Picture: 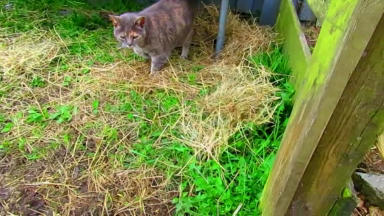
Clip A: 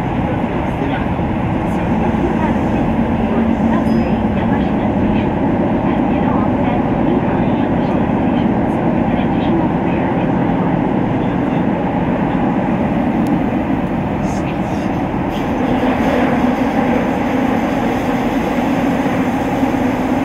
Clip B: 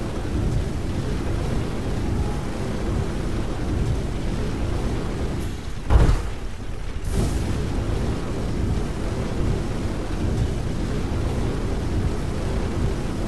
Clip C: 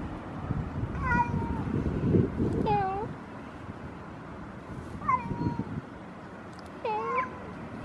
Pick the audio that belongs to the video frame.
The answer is C